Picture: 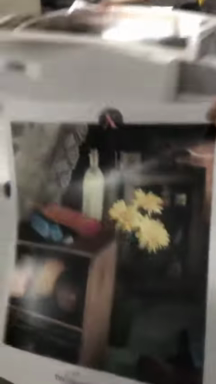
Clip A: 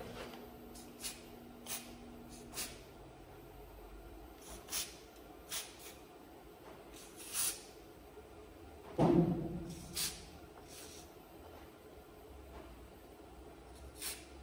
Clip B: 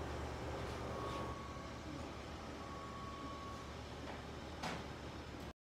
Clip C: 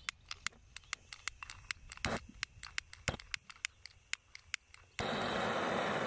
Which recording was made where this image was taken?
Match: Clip B